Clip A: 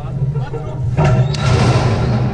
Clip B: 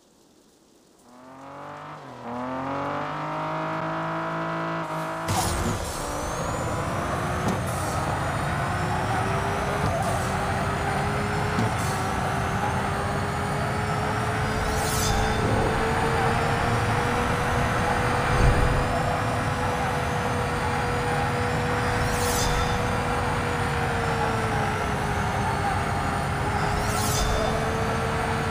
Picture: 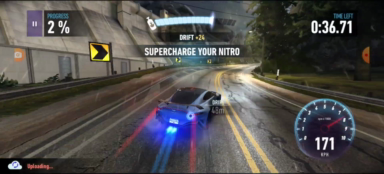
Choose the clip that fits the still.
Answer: B